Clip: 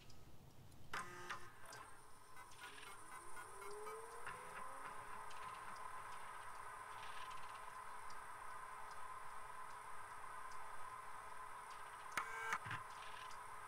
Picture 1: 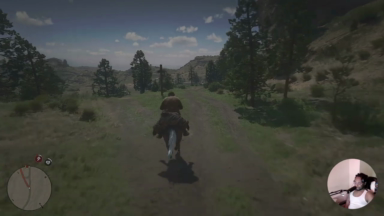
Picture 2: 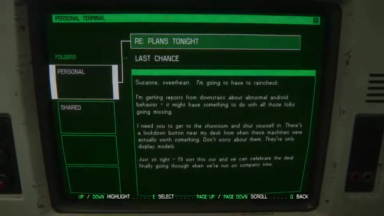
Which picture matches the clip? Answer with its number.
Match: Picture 2